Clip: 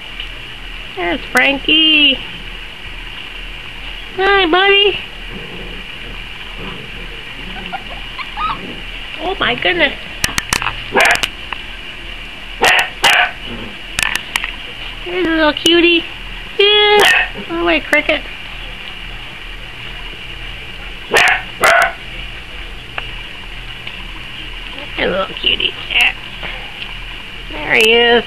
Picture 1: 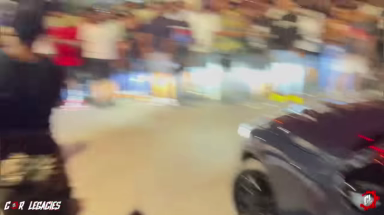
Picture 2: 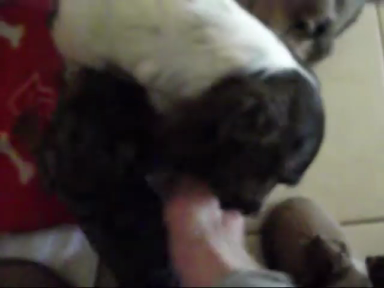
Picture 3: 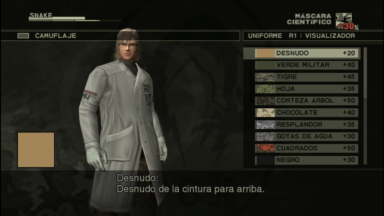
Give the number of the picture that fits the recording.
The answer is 2